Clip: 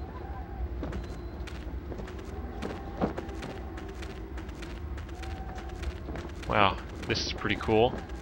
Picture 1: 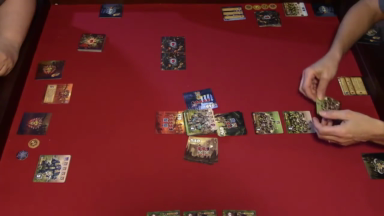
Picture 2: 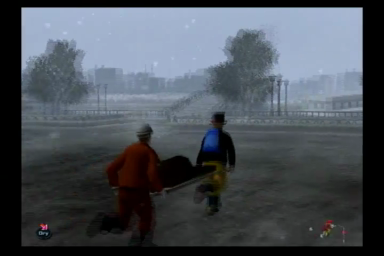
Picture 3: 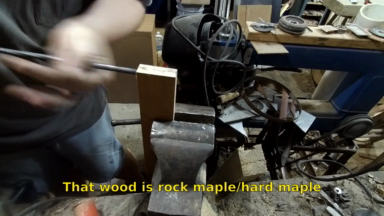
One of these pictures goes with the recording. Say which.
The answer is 2